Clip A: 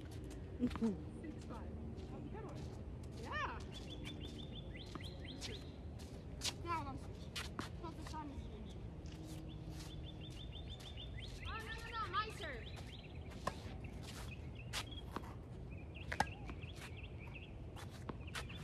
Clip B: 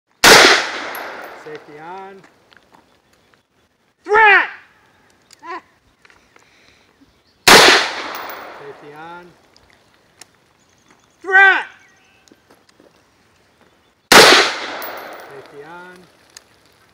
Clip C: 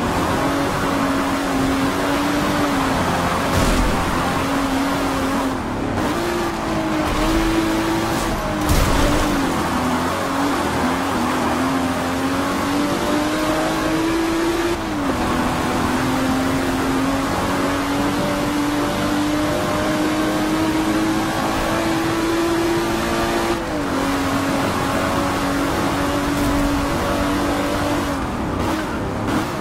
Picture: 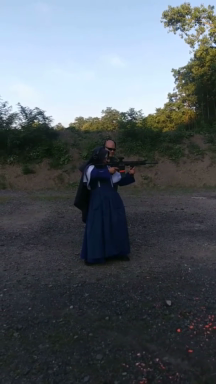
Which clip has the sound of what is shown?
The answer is B